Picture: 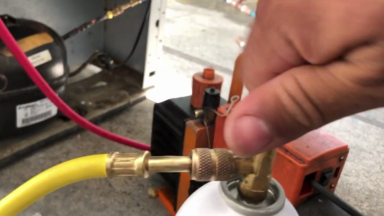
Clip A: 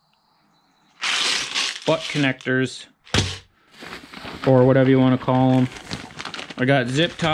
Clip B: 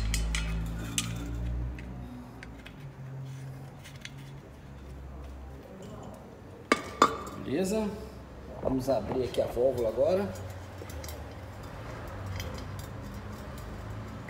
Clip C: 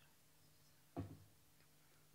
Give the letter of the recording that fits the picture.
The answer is B